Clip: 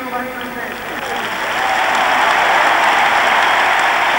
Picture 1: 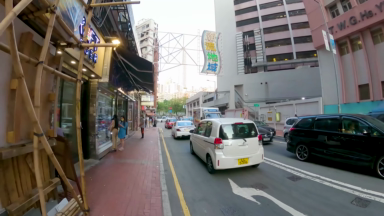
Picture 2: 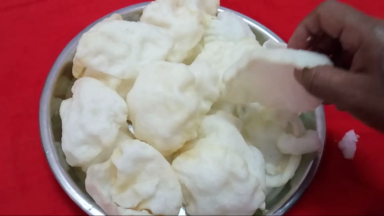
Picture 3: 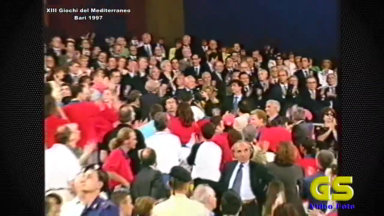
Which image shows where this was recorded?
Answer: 3